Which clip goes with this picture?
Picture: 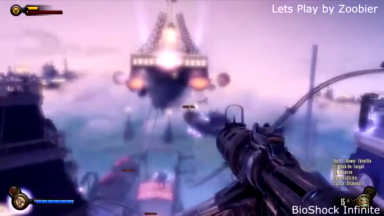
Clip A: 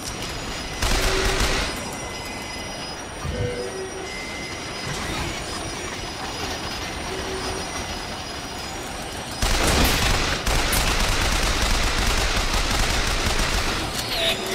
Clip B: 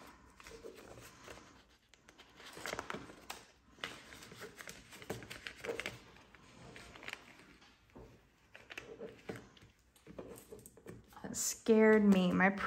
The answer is A